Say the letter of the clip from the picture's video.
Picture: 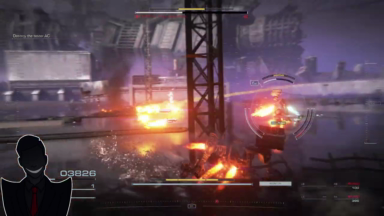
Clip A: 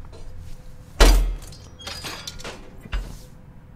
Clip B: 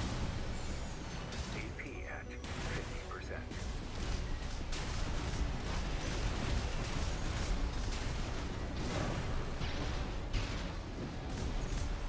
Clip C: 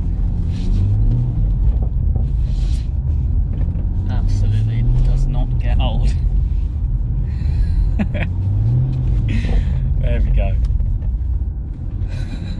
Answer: B